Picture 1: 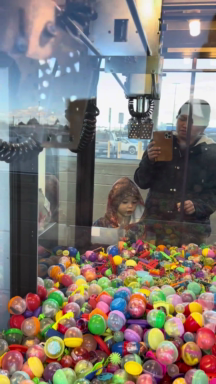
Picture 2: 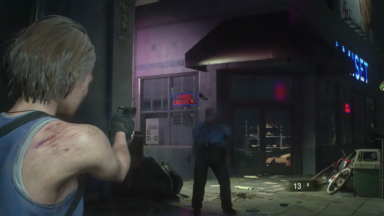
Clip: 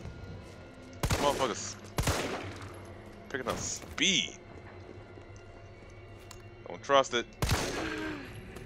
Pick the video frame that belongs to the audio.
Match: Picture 2